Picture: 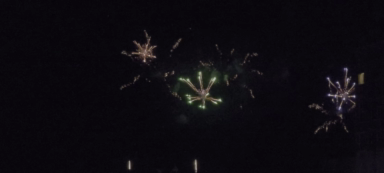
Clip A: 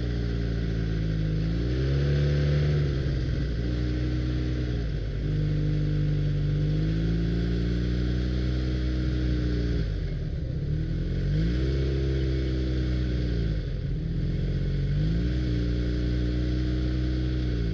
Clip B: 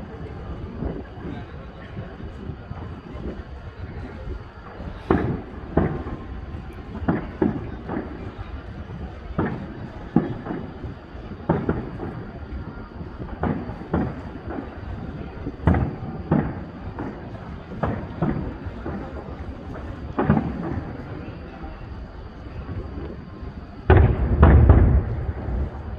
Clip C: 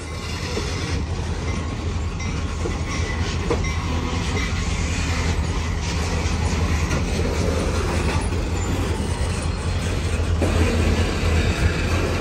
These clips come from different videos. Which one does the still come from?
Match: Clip B